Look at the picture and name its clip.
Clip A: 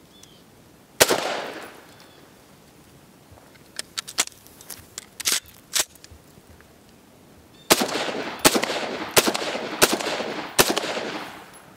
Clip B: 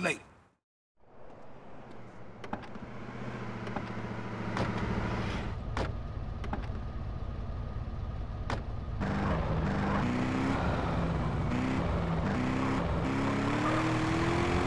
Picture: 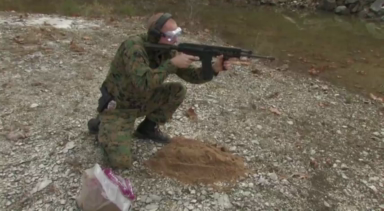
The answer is A